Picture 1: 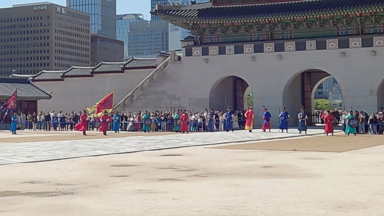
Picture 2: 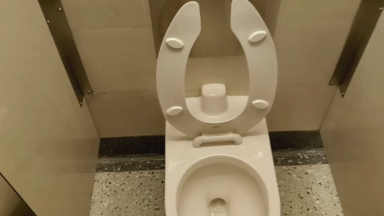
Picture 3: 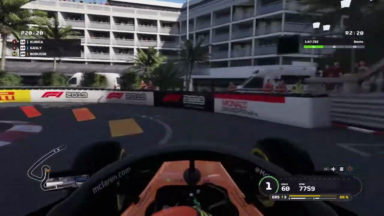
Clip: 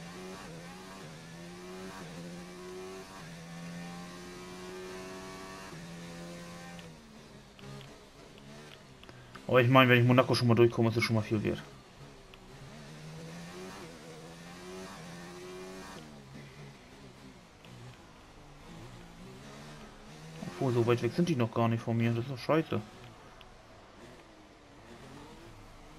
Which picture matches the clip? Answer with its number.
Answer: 3